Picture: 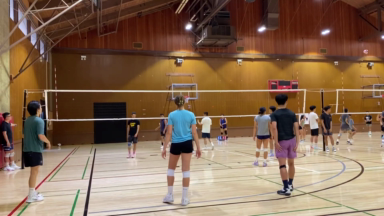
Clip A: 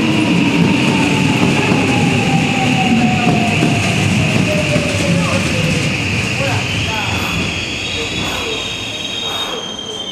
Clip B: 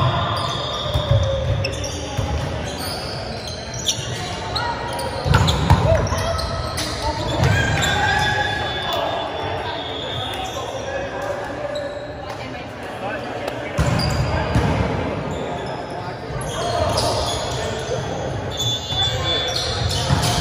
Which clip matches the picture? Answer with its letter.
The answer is B